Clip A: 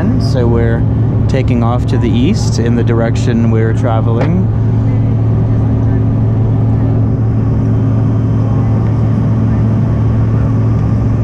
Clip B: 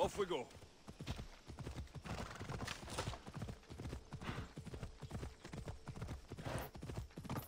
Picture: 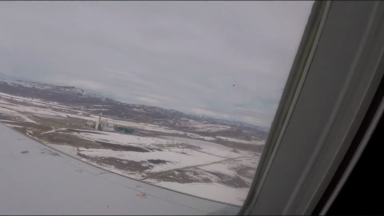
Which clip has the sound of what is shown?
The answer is A